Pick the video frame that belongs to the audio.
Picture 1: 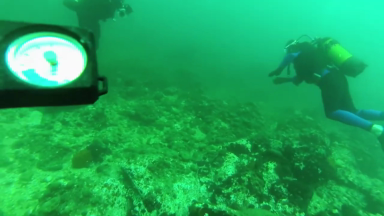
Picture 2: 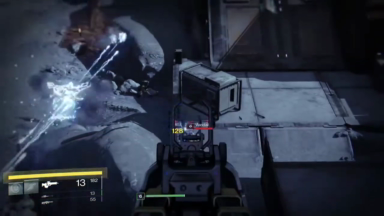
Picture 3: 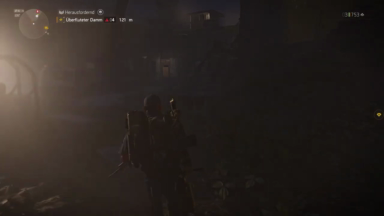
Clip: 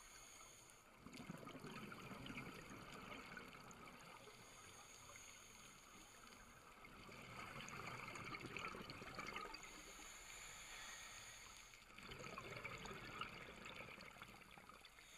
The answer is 1